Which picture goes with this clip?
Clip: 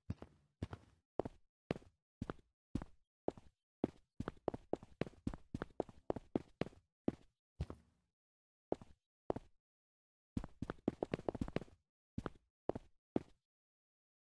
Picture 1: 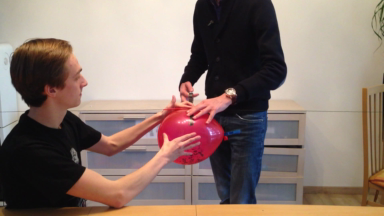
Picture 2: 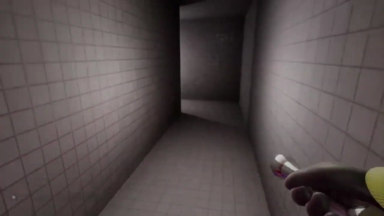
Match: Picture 2